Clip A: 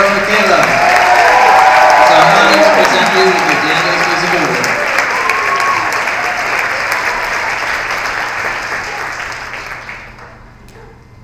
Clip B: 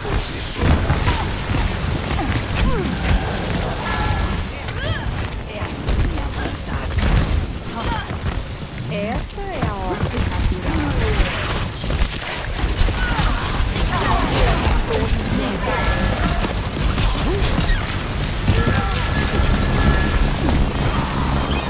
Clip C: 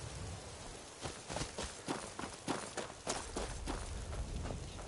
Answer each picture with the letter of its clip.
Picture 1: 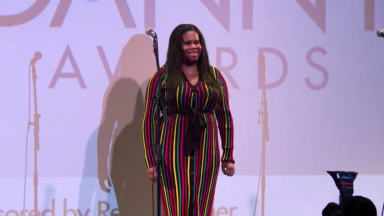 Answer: A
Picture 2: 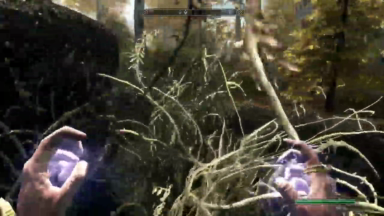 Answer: C